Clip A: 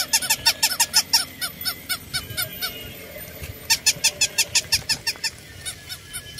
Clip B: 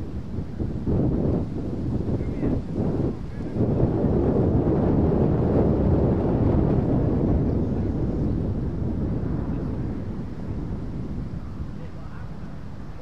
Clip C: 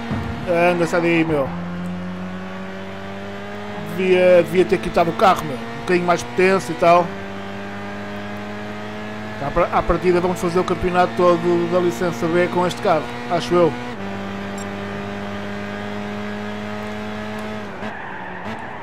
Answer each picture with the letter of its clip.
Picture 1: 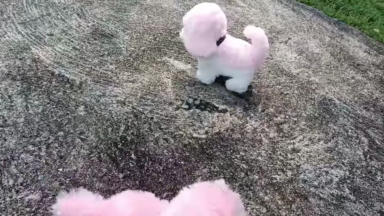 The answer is A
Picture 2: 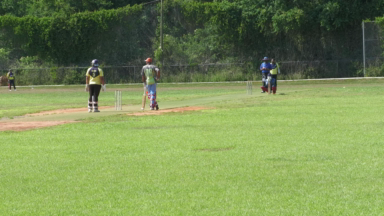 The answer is B